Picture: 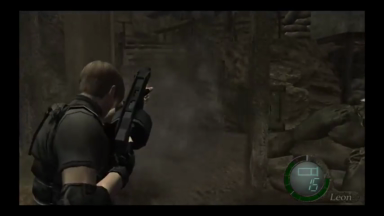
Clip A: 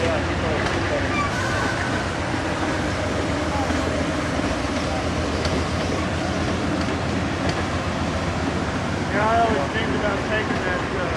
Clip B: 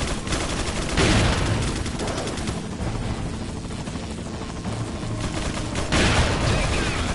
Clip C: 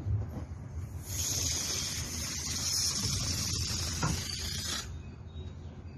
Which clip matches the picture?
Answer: B